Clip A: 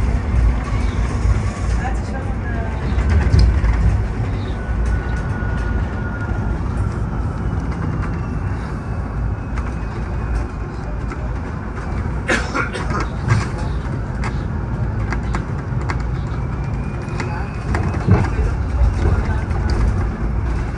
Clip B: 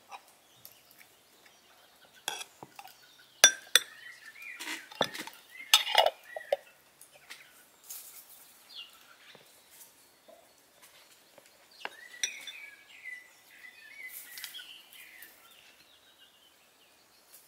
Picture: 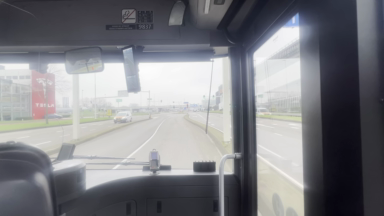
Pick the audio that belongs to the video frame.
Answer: A